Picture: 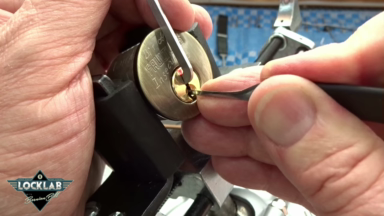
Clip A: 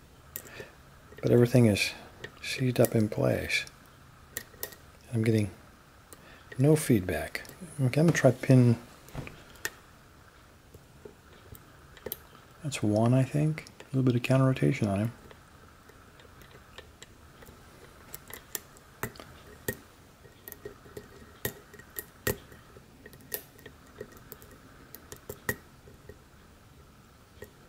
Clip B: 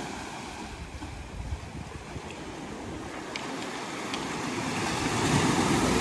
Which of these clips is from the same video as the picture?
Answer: A